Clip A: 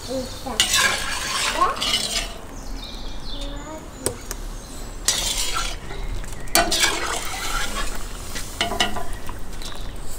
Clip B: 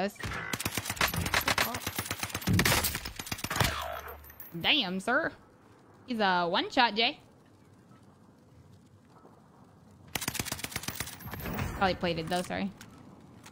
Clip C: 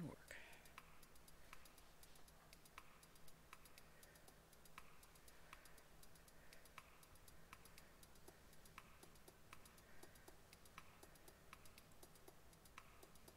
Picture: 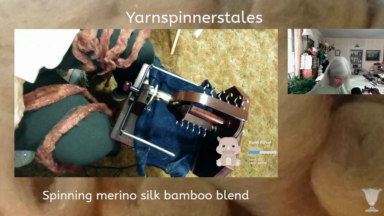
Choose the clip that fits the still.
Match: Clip C